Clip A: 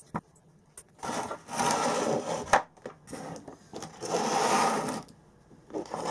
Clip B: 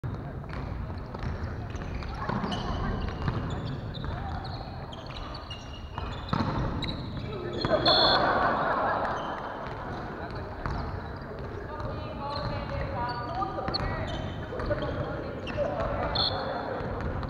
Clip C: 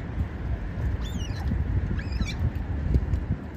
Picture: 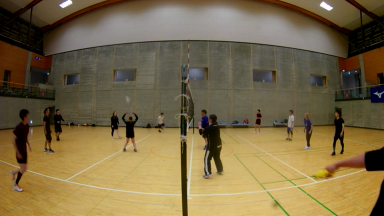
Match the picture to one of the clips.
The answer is B